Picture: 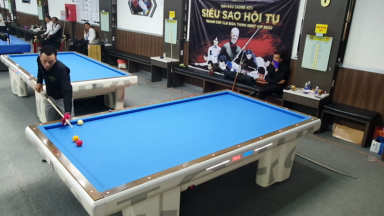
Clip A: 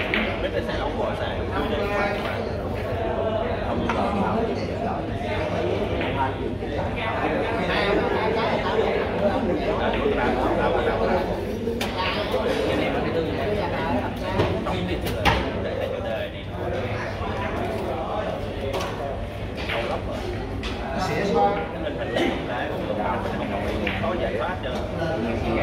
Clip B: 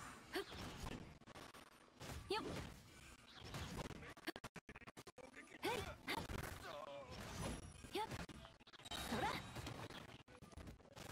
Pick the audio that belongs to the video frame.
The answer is A